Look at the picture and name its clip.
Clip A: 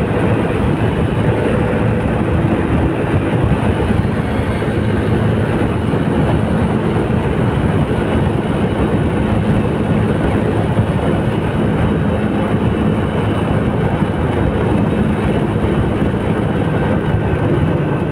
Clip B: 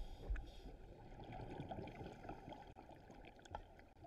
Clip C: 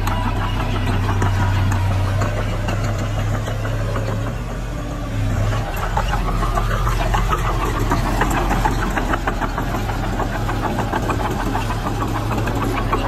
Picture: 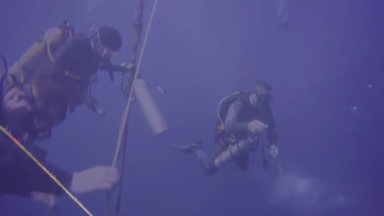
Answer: B